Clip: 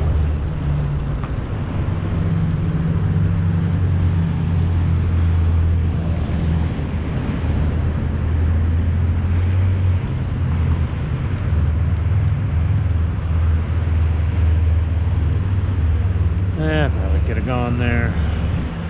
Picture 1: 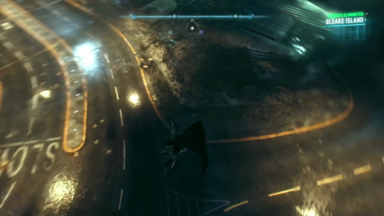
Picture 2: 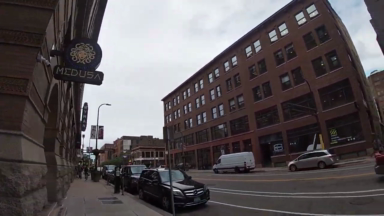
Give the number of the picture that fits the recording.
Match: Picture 2